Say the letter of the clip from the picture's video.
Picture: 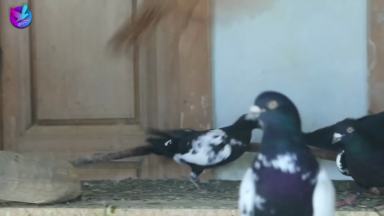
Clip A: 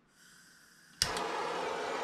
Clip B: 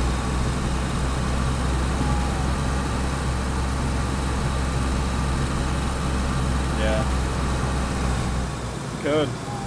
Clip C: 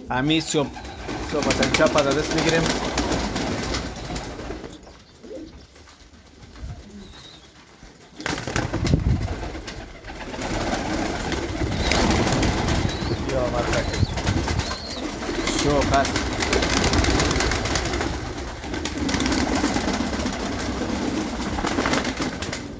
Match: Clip C